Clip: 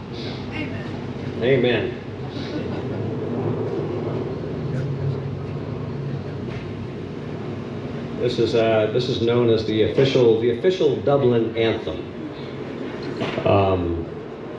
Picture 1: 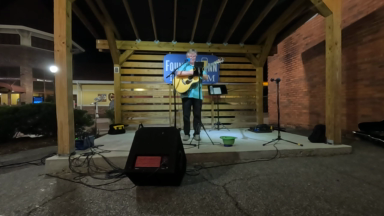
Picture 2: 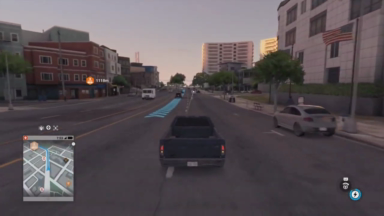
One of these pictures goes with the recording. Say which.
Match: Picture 1